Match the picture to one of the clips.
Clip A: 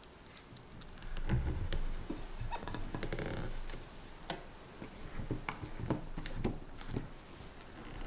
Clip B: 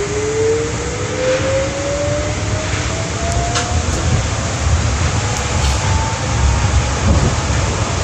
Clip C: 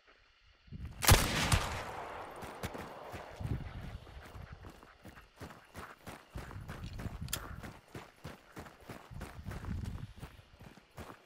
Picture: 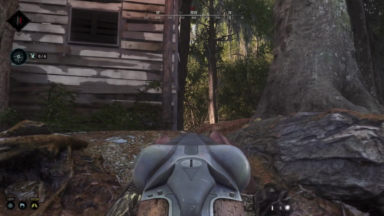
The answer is C